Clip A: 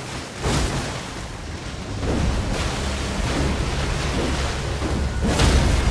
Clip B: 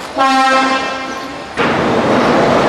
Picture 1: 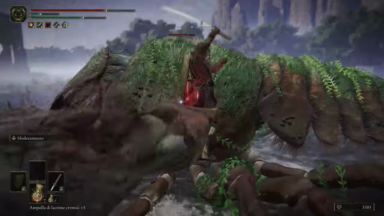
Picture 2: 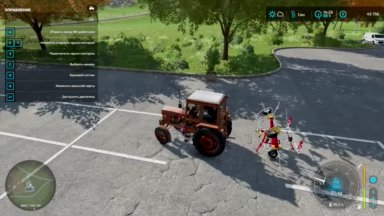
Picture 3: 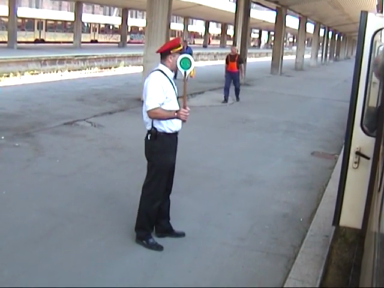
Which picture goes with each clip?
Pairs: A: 1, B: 3